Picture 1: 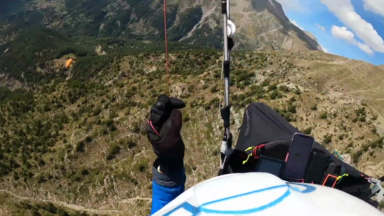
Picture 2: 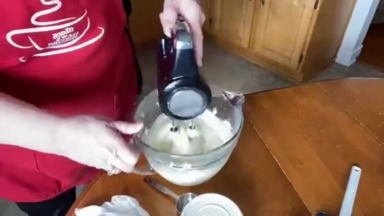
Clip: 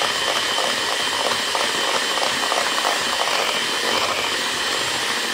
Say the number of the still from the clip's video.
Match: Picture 2